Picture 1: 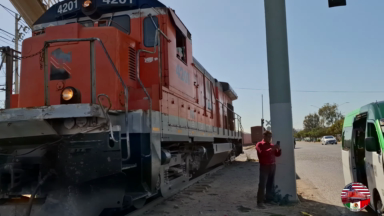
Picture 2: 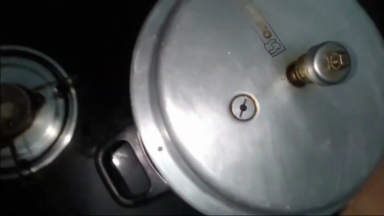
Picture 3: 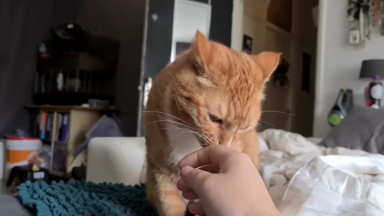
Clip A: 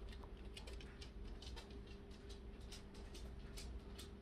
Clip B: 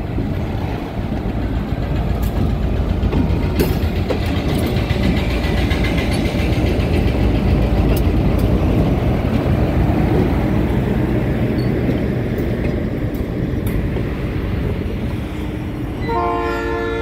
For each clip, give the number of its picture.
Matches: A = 3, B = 1